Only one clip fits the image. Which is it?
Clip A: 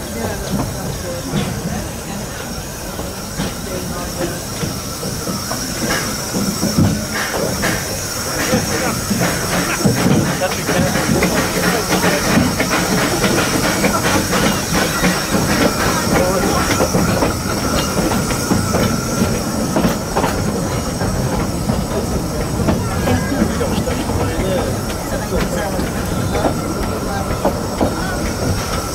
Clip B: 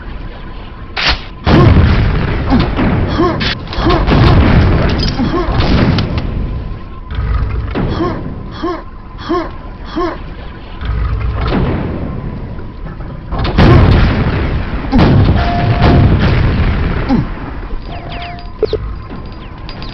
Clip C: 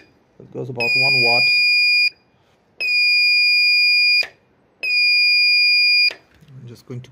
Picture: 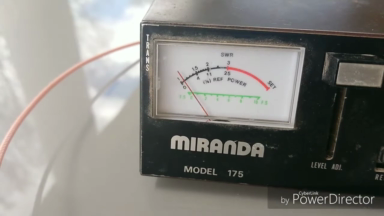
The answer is C